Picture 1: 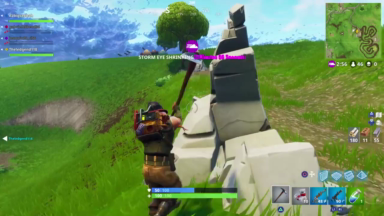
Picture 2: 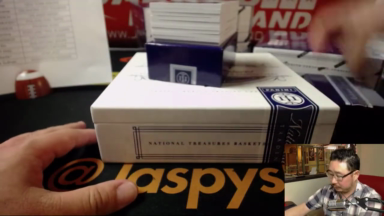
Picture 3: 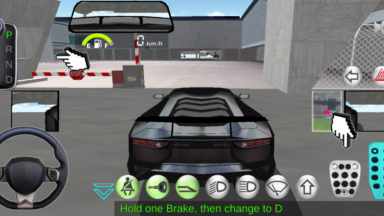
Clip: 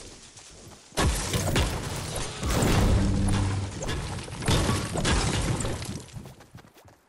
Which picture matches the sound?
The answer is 1